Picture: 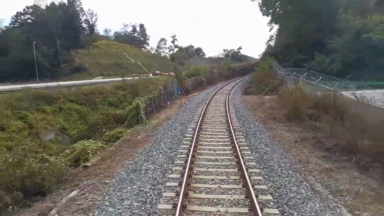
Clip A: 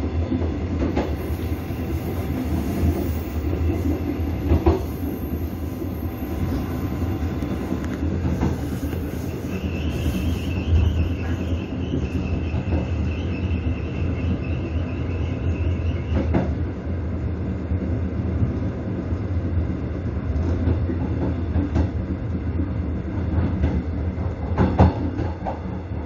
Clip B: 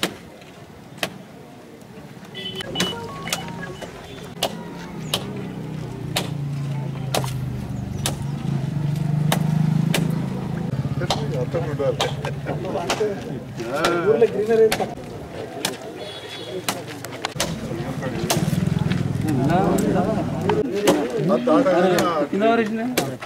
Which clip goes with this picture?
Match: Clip A